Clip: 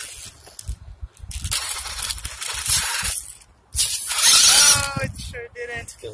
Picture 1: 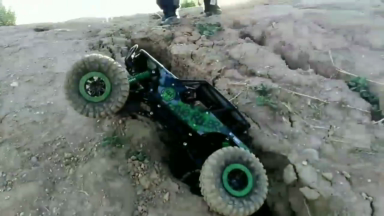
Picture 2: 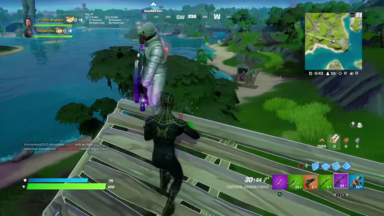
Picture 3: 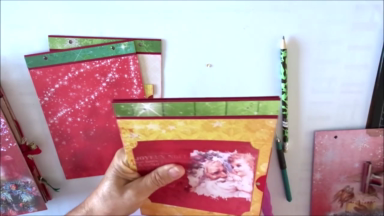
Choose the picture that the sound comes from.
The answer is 1